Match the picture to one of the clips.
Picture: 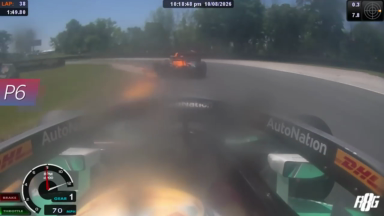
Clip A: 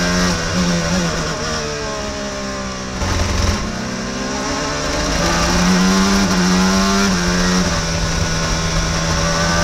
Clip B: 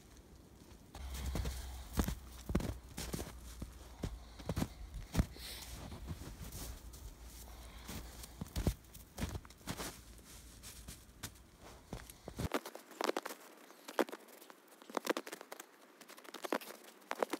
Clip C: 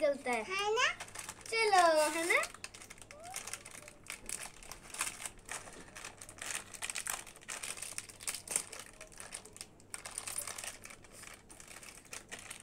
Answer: A